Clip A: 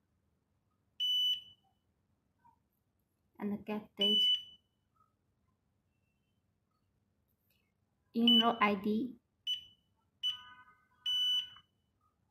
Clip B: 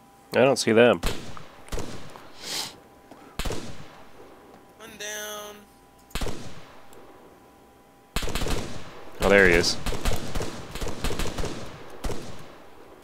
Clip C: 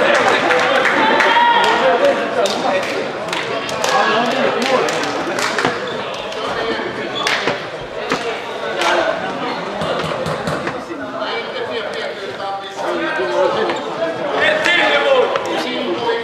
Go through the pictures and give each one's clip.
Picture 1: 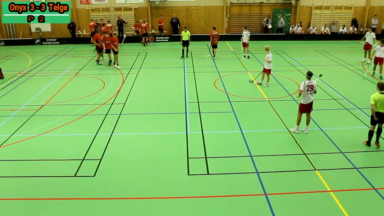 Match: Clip C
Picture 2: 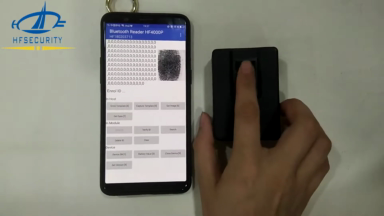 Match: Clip A